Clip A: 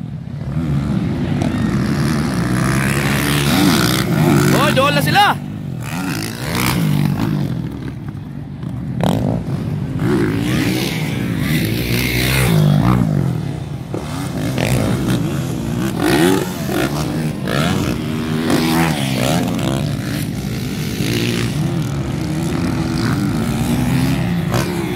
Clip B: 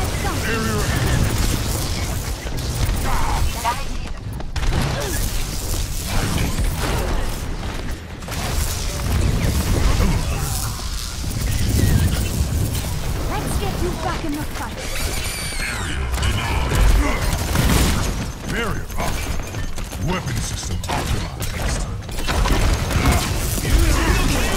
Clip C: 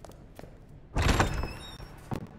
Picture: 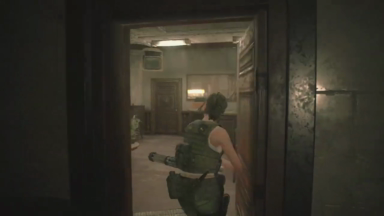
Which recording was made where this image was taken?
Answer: C